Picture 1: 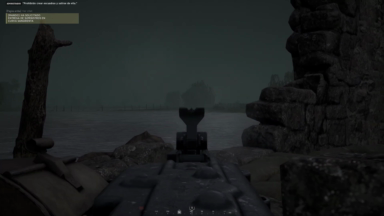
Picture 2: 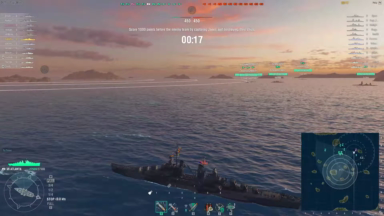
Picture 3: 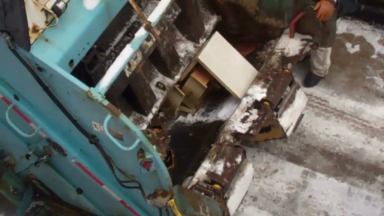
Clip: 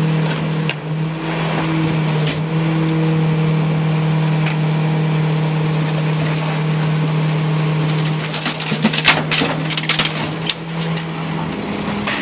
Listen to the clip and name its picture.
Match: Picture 3